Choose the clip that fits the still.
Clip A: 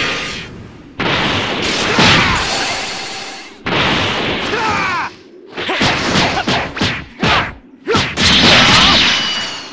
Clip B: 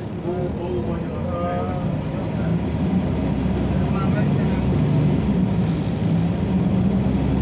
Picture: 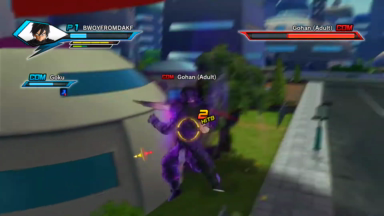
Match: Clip A